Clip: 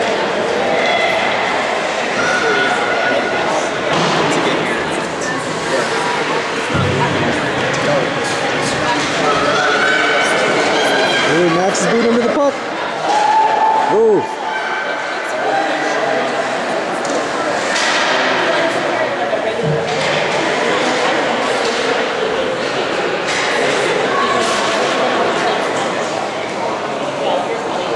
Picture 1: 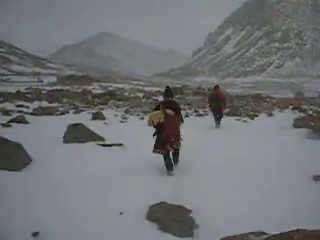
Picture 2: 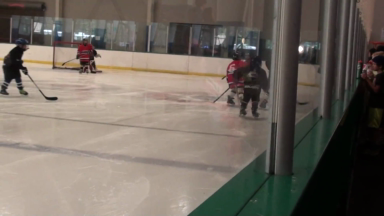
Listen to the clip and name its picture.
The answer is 2